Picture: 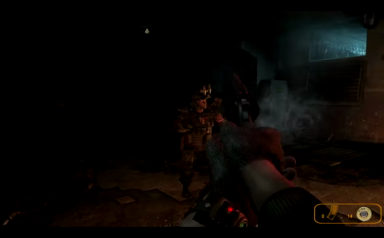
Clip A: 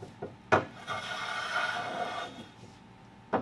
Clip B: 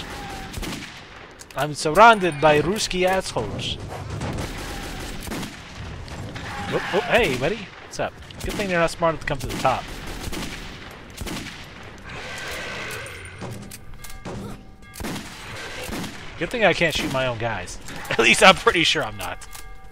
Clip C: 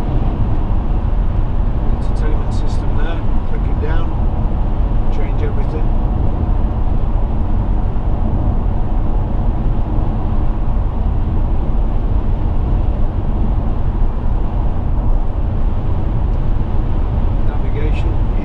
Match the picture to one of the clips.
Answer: B